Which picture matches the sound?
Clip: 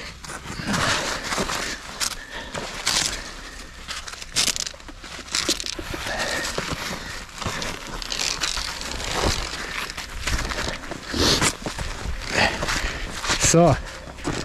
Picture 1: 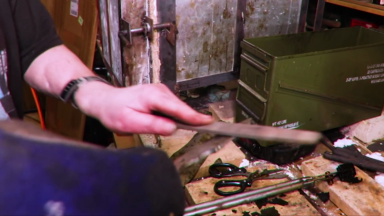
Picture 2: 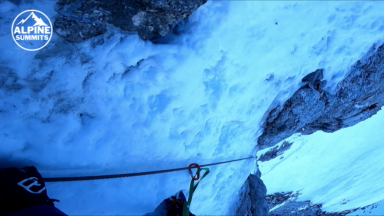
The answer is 2